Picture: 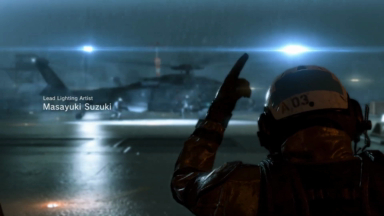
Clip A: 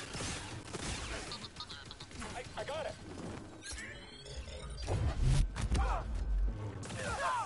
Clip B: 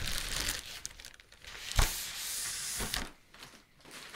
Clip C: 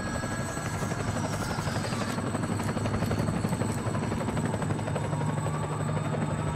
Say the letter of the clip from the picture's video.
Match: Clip C